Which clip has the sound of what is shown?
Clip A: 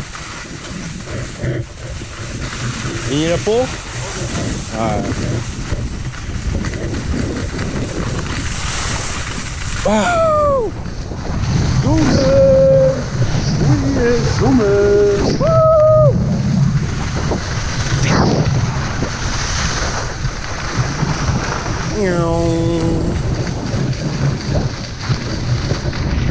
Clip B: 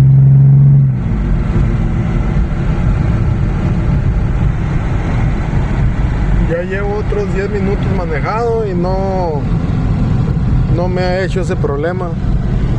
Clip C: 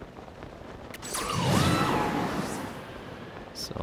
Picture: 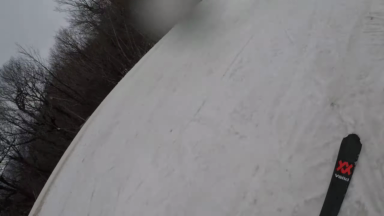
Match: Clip A